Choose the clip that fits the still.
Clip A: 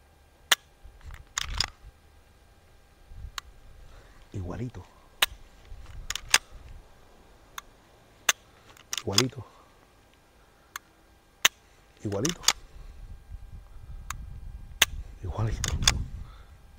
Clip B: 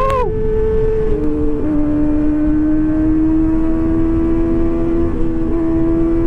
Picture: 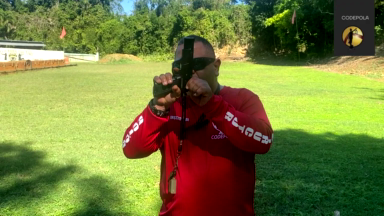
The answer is A